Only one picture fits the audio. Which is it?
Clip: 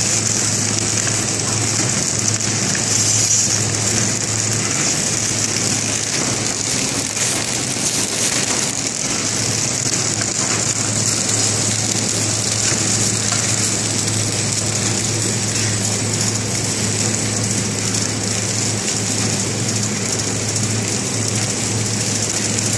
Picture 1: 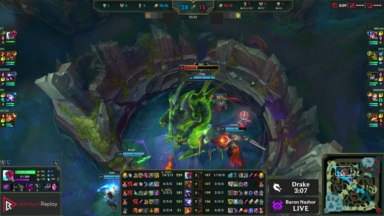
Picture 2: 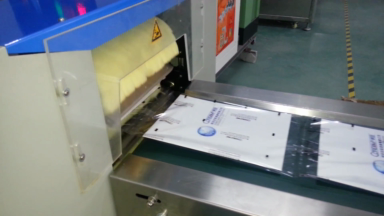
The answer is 2